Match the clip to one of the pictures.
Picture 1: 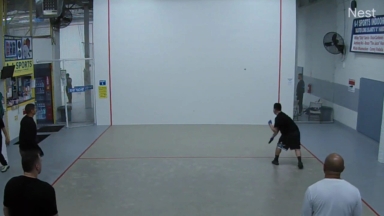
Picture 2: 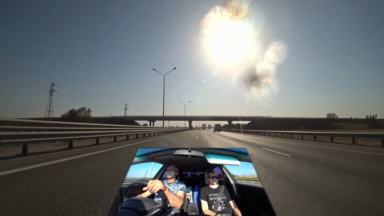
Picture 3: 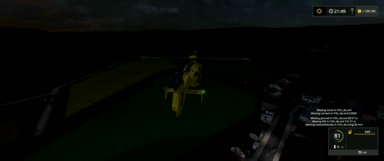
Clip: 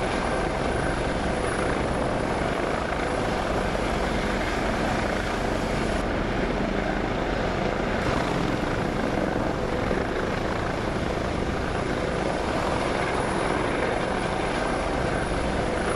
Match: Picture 3